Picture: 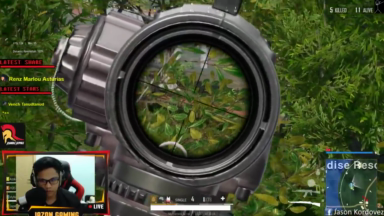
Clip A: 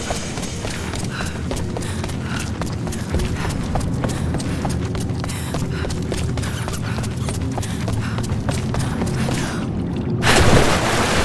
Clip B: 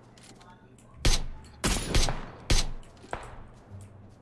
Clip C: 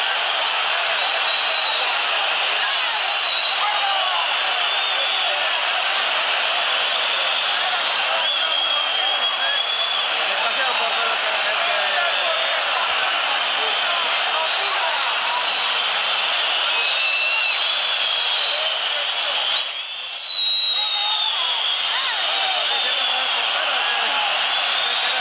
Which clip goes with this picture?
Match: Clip B